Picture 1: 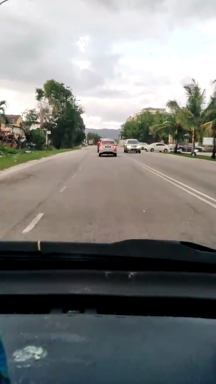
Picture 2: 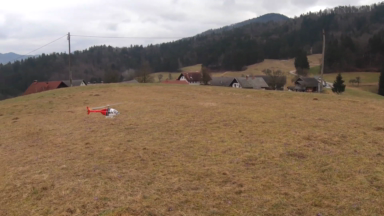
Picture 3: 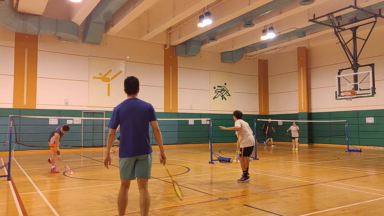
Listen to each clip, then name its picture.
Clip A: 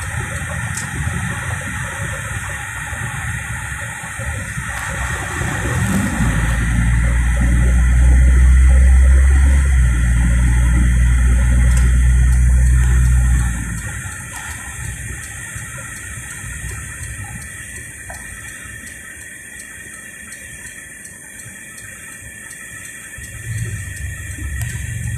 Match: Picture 1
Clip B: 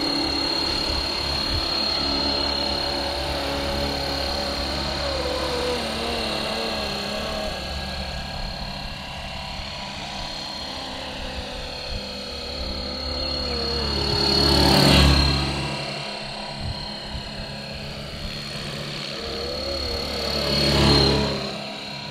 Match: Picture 2